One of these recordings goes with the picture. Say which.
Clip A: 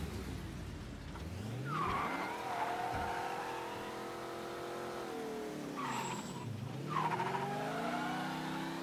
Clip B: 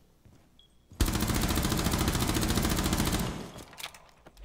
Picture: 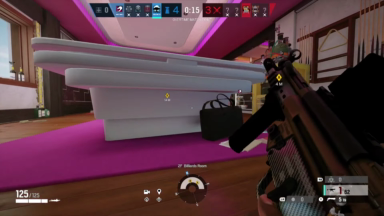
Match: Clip B